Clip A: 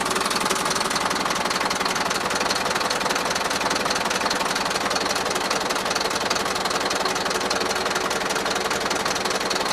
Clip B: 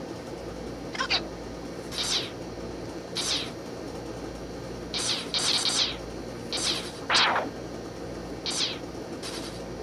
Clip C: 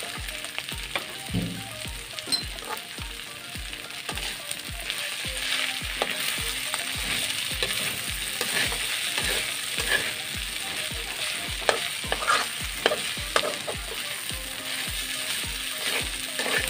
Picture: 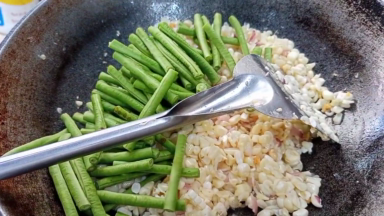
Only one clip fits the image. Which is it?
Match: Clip C